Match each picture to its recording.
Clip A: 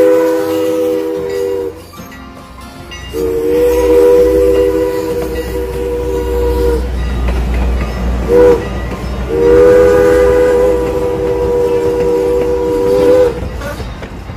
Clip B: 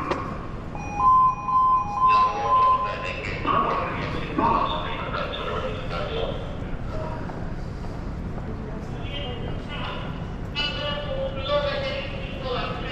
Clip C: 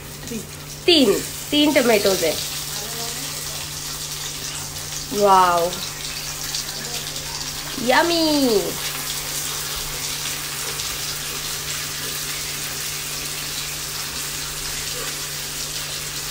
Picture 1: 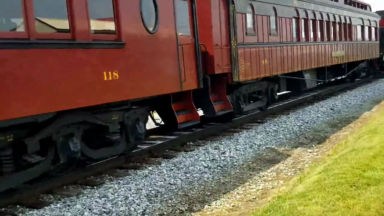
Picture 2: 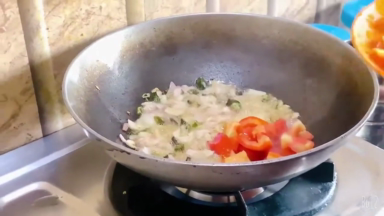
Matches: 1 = A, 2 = C